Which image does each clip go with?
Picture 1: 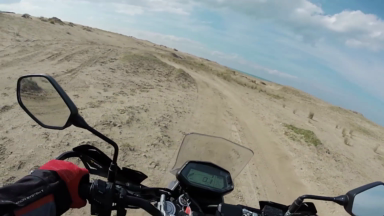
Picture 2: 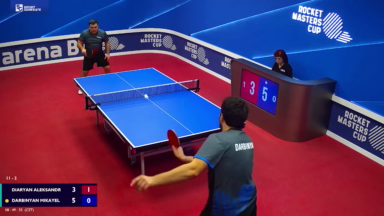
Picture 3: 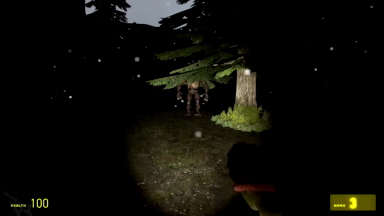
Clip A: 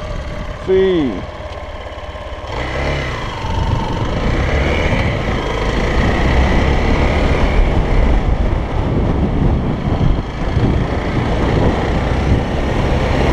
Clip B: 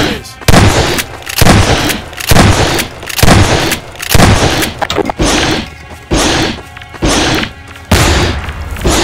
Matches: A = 1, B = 3